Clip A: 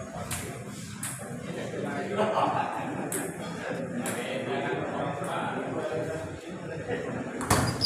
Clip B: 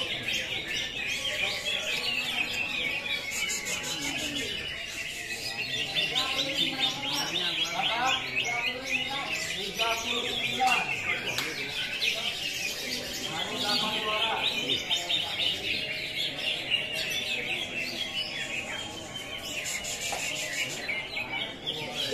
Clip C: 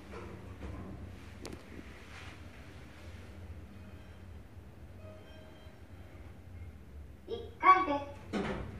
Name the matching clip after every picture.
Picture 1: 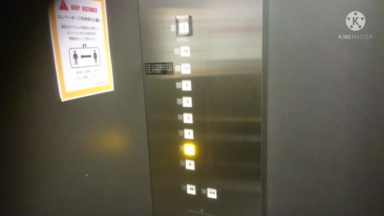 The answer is C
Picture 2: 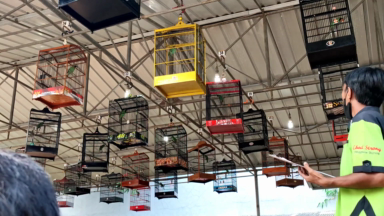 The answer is B